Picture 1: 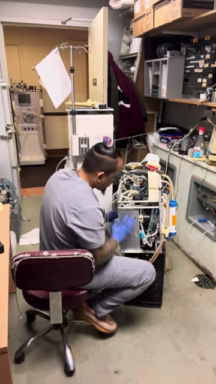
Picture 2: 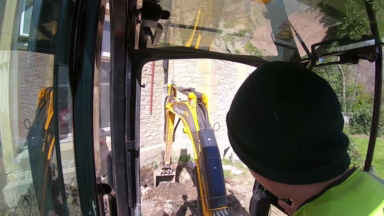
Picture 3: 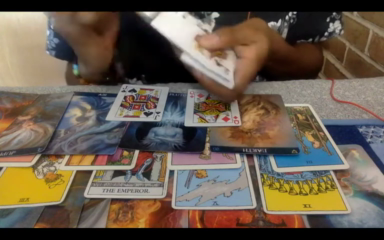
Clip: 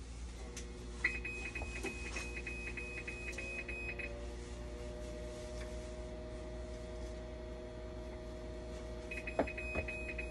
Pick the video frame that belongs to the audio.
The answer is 1